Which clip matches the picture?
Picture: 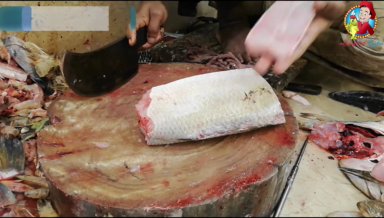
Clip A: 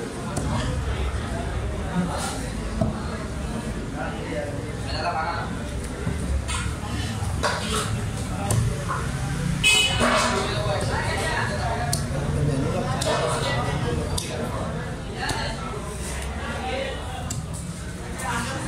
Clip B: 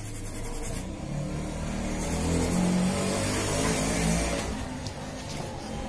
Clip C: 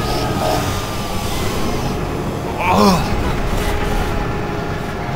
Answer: A